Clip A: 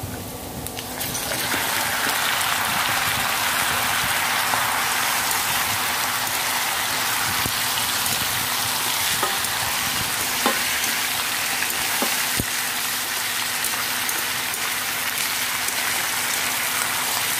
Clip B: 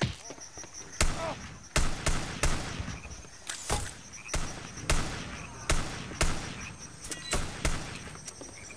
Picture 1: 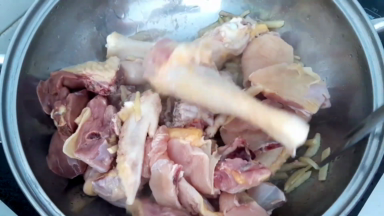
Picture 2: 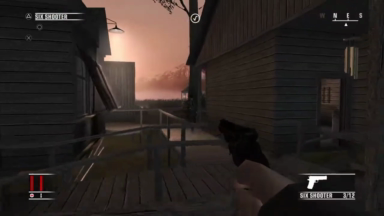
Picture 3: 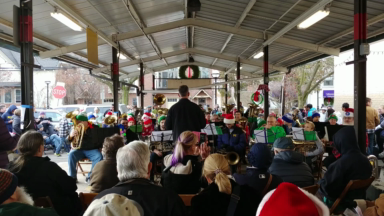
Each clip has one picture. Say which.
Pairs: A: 1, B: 2